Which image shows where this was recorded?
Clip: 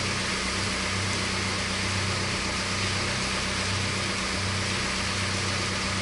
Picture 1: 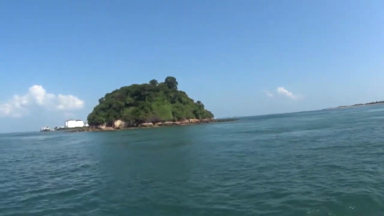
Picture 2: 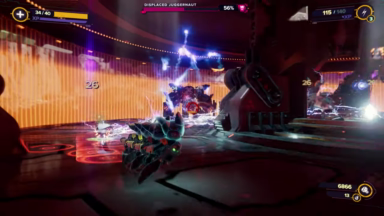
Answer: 1